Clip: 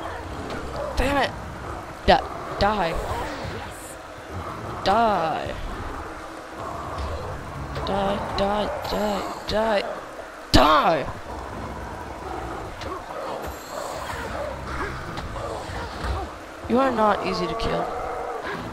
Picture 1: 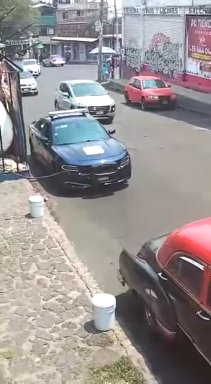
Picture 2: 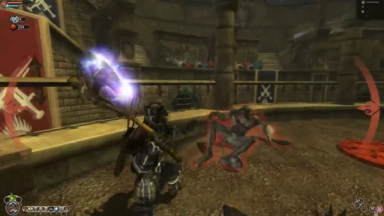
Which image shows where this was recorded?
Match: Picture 2